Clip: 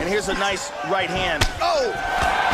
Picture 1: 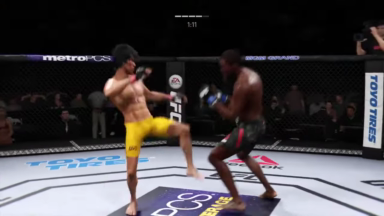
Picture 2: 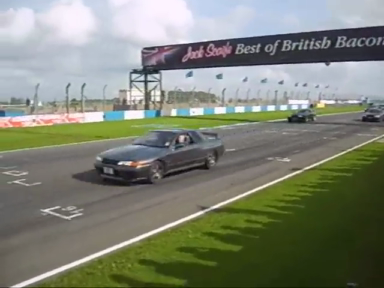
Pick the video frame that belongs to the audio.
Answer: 1